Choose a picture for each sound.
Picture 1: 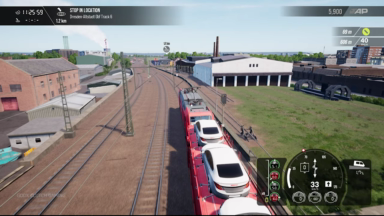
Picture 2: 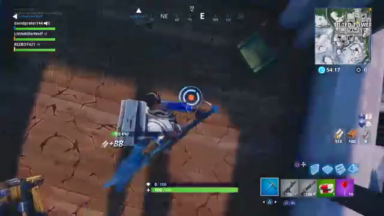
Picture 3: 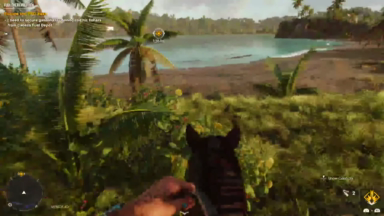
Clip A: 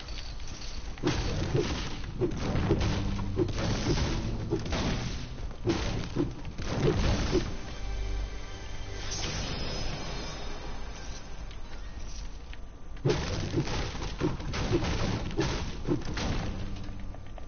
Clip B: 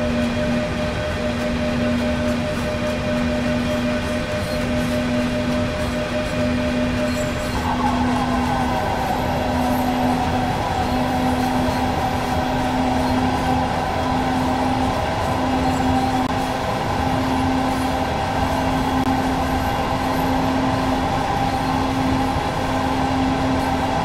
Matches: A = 2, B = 1